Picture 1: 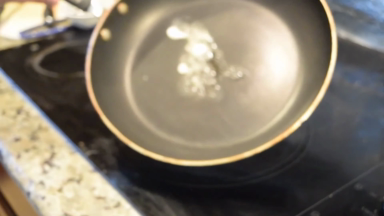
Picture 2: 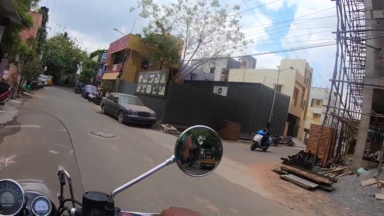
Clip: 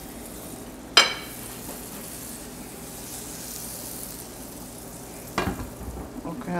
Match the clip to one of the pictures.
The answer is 1